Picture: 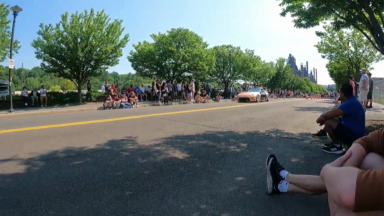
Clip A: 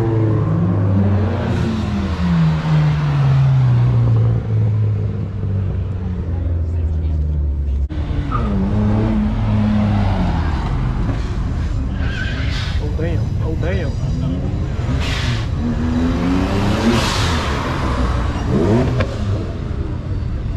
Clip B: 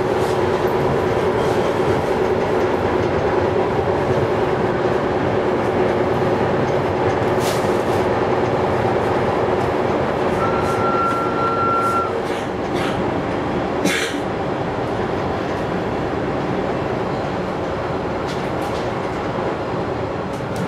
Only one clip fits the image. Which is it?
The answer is A